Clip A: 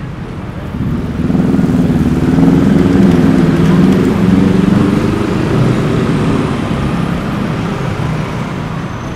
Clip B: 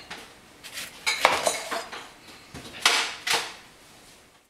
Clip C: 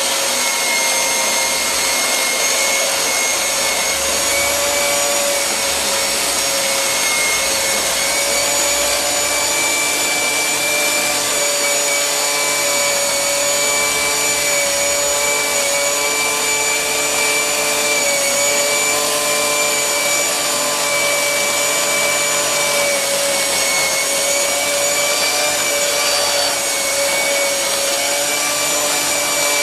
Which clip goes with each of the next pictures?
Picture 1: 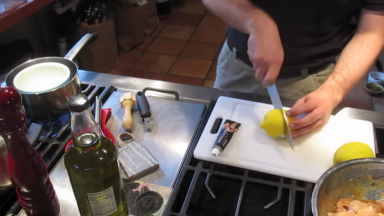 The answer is B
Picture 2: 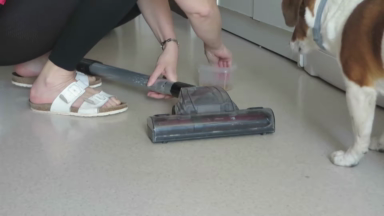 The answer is C